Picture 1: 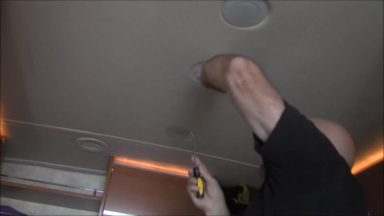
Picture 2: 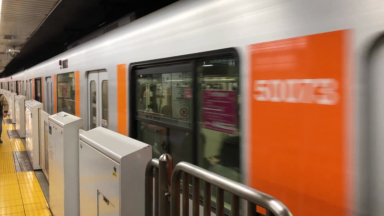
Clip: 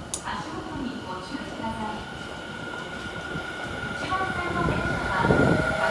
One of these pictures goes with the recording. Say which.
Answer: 2